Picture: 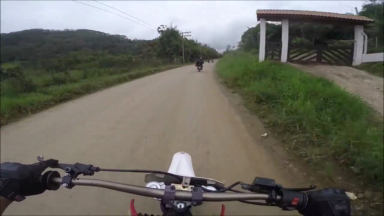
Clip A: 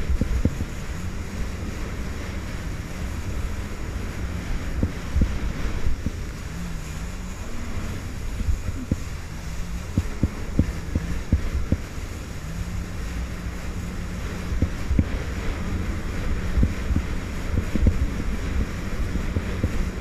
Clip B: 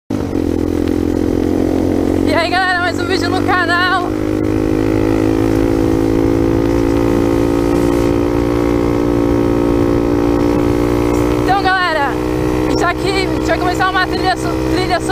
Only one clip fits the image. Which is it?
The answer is B